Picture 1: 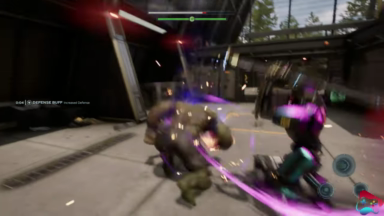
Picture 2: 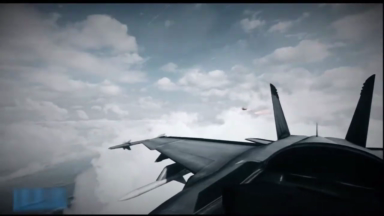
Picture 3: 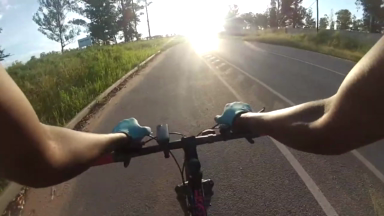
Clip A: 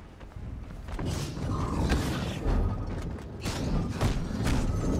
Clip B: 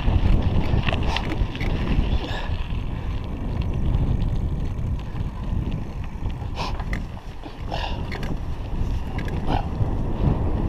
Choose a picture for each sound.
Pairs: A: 1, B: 3